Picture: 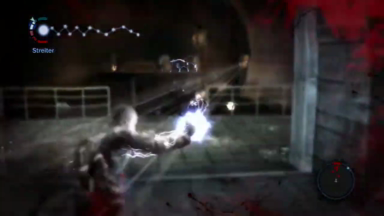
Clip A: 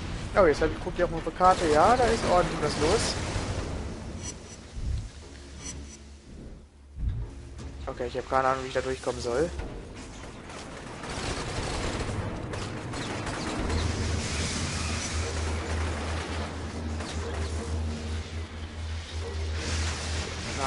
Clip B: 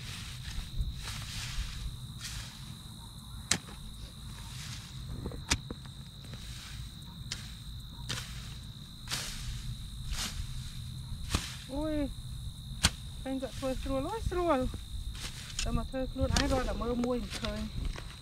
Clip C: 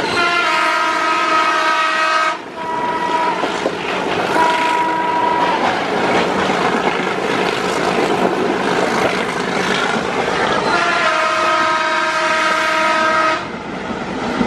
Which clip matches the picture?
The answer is A